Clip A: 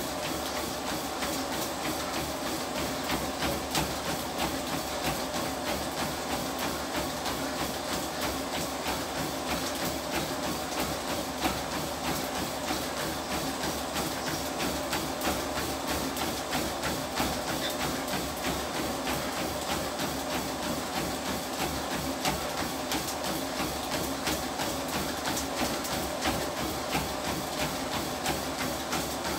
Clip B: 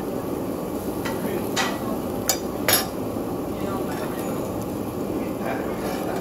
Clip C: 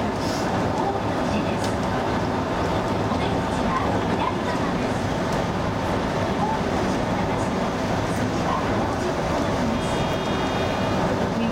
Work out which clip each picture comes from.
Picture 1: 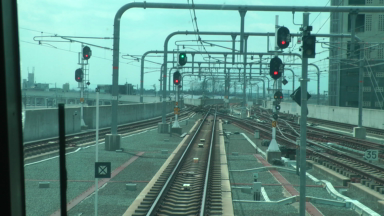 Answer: C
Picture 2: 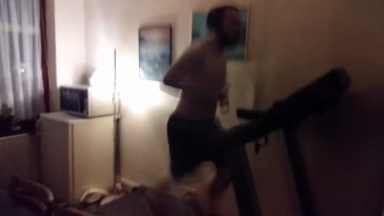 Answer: A